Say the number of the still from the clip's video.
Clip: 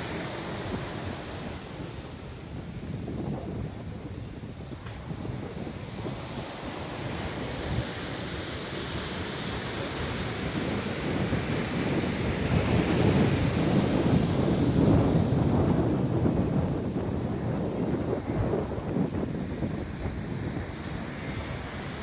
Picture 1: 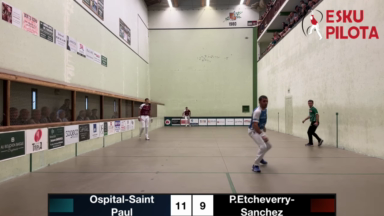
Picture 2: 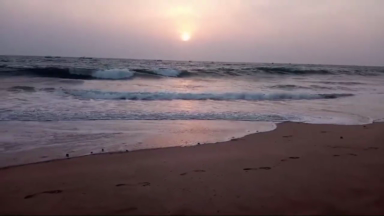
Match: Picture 2